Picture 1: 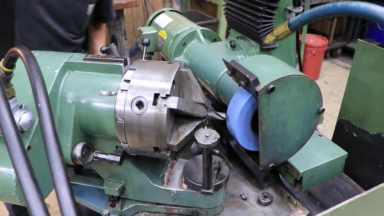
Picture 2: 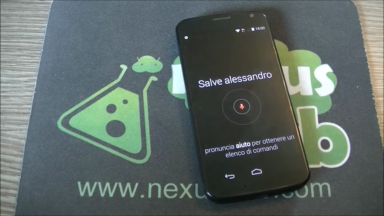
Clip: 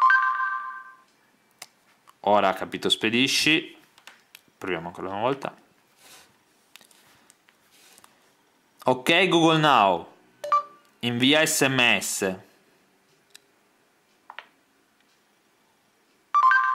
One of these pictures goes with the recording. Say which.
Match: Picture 2